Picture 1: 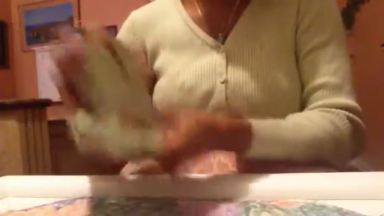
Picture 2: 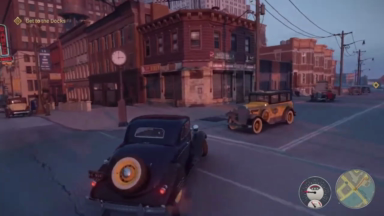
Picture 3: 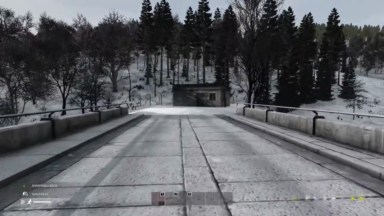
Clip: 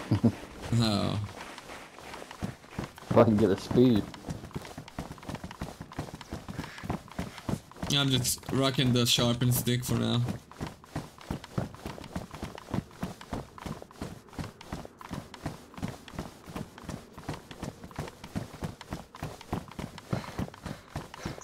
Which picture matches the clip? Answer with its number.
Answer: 3